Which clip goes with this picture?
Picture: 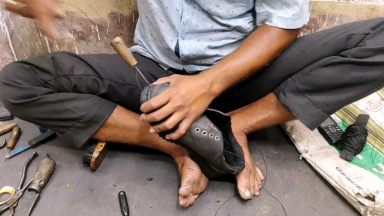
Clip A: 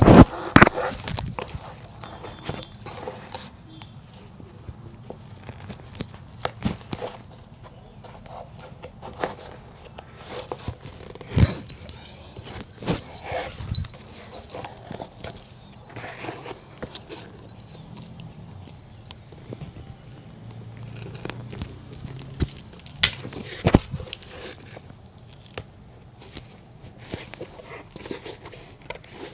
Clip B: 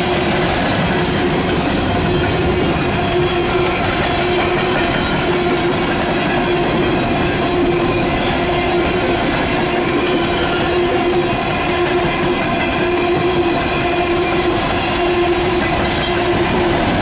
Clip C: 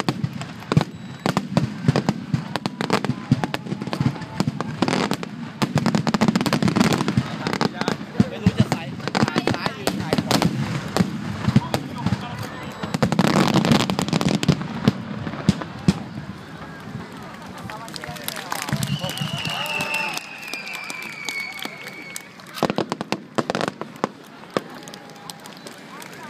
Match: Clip A